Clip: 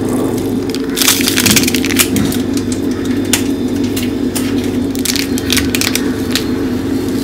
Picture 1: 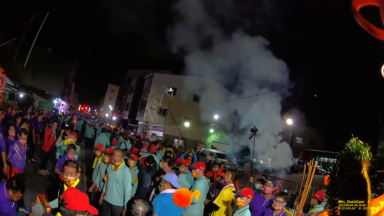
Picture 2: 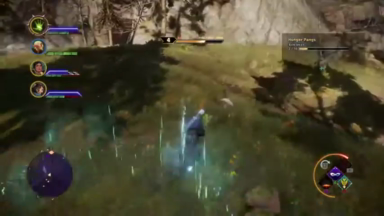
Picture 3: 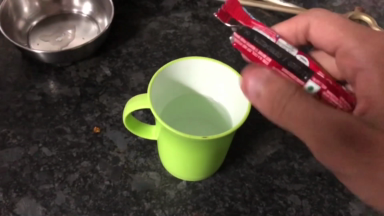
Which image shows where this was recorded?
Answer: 3